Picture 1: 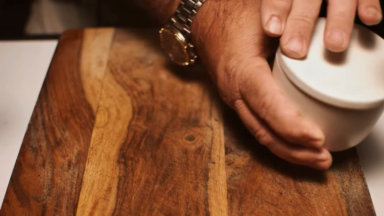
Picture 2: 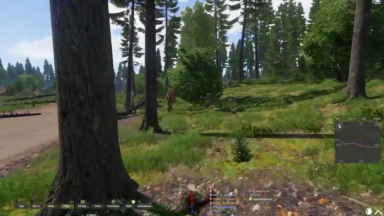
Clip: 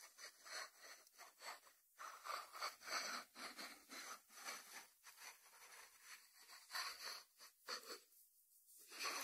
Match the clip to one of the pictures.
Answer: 1